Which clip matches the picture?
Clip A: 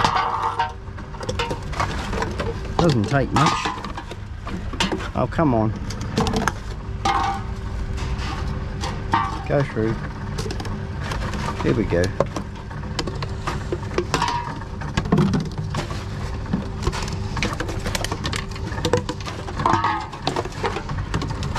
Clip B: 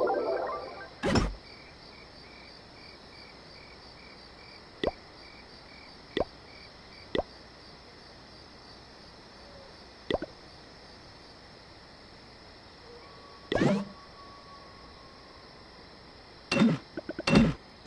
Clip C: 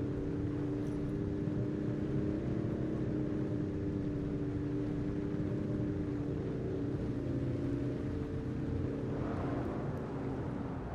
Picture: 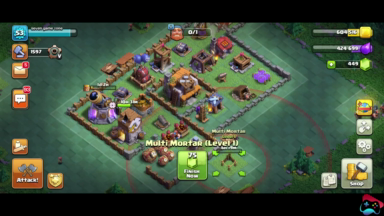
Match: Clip B